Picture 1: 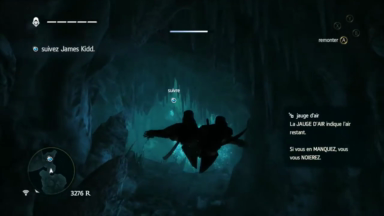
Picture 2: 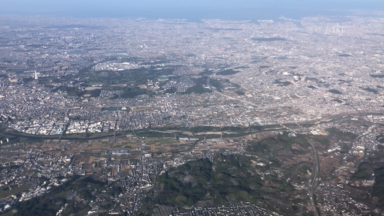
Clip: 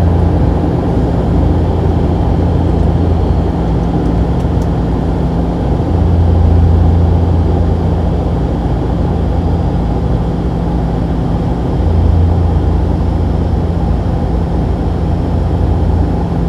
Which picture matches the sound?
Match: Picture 2